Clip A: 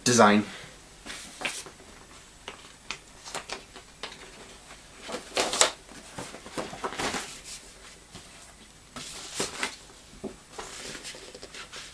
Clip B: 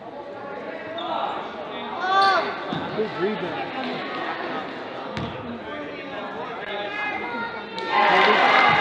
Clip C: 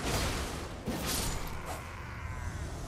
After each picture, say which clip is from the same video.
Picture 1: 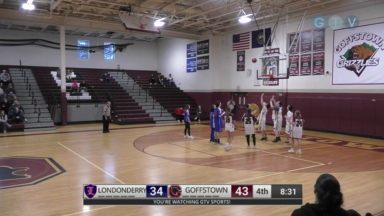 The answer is B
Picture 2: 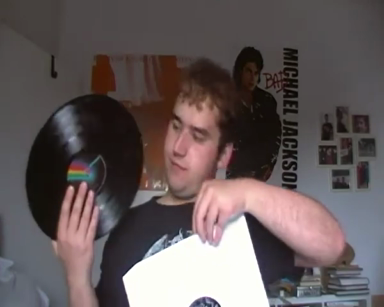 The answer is A